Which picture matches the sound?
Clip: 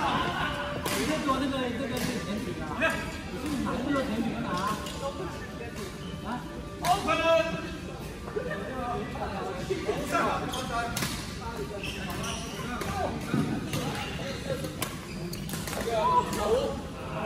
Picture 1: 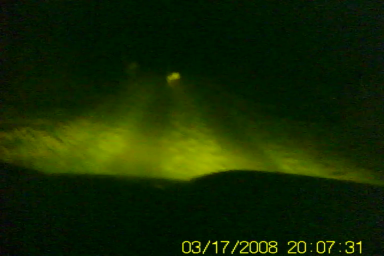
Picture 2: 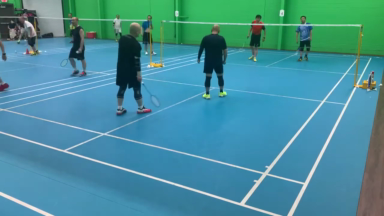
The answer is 2